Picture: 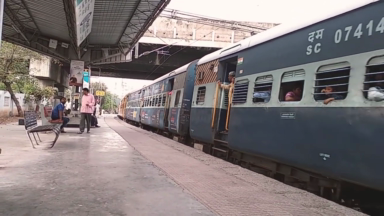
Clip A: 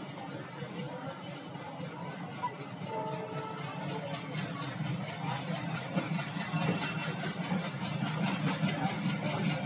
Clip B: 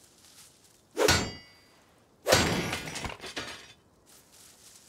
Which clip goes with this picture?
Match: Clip A